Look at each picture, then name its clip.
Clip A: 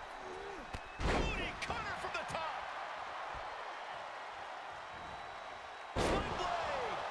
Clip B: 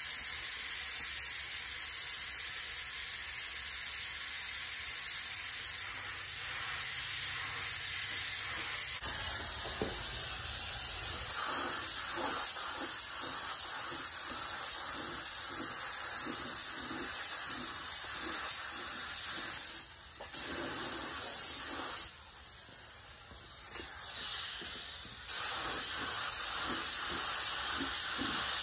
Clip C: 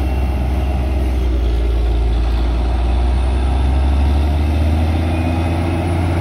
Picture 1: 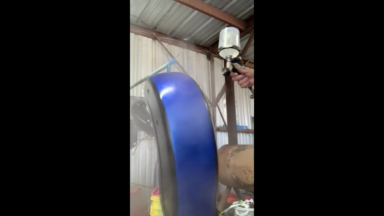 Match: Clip B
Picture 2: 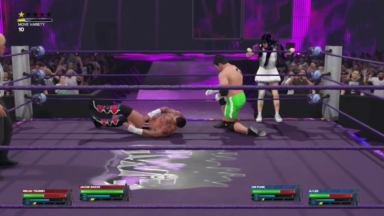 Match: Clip A